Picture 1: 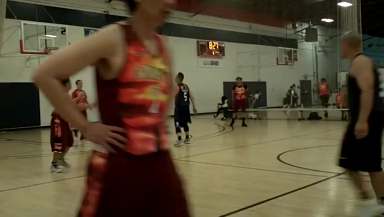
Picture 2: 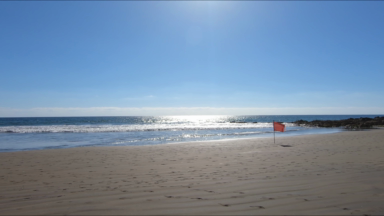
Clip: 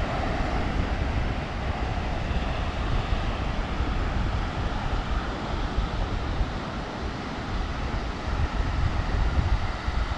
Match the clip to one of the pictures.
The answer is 2